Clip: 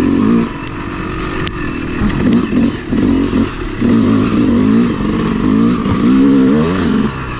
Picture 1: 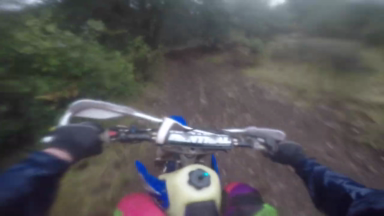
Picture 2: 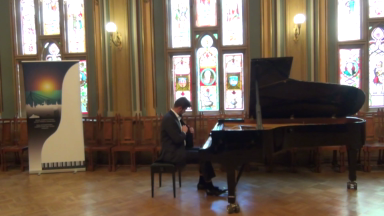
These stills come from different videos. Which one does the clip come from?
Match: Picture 1